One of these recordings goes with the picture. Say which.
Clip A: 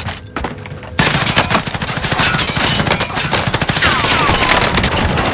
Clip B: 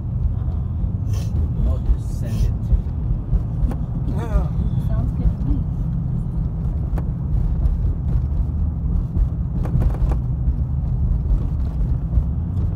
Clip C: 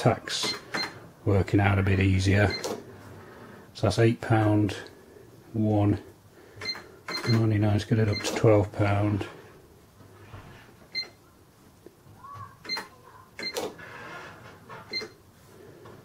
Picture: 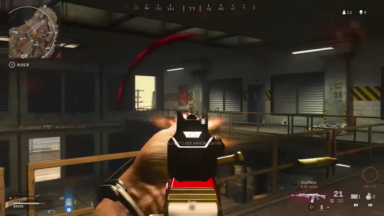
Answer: A